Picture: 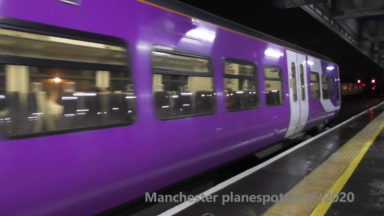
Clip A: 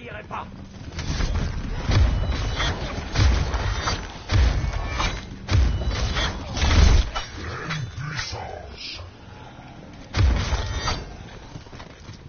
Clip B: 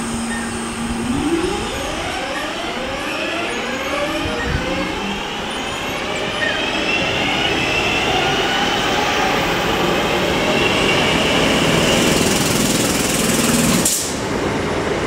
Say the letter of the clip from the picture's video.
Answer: B